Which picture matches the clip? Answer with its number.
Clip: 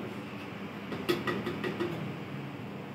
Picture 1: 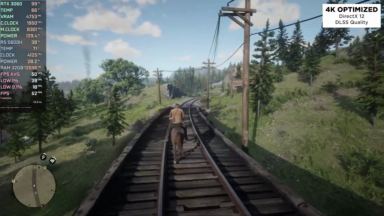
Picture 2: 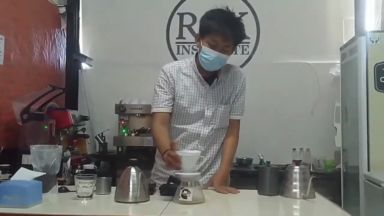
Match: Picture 2